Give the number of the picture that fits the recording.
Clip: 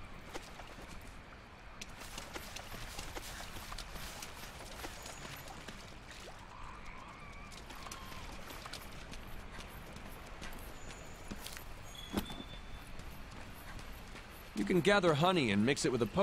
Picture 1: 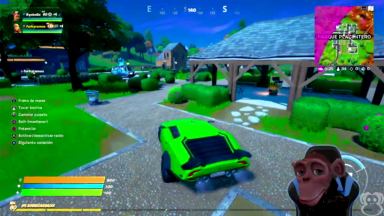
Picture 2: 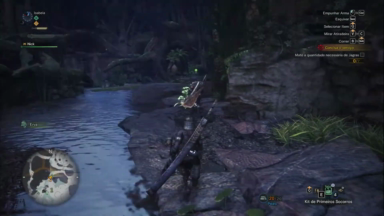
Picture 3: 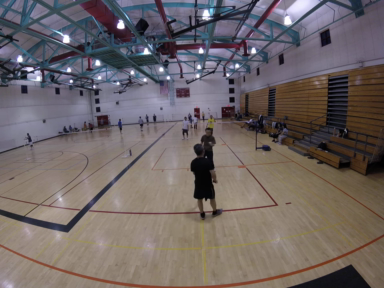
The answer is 2